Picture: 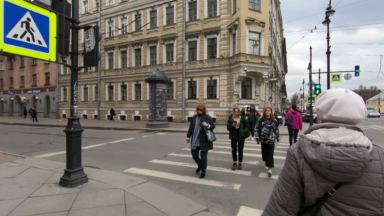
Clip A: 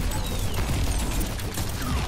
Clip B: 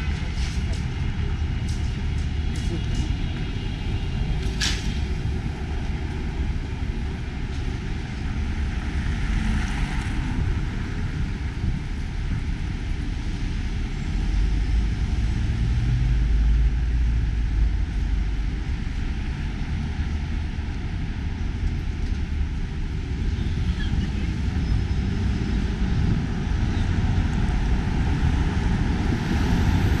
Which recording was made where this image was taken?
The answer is B